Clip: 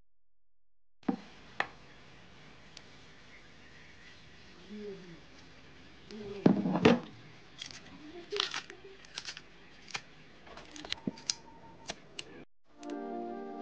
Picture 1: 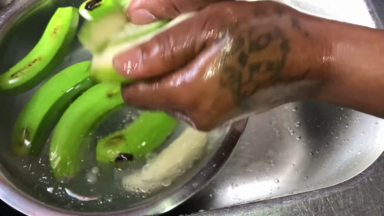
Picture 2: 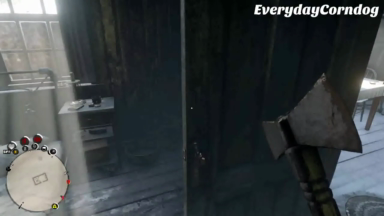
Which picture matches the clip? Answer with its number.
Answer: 1